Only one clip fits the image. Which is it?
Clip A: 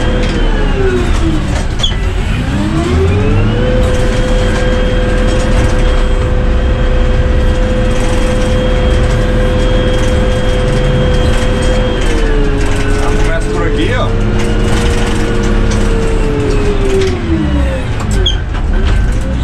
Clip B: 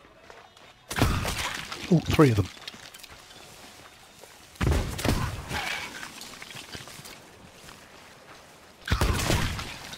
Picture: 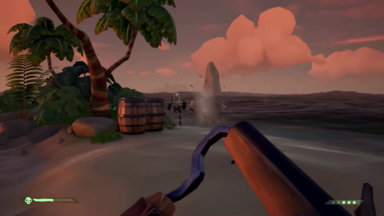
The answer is B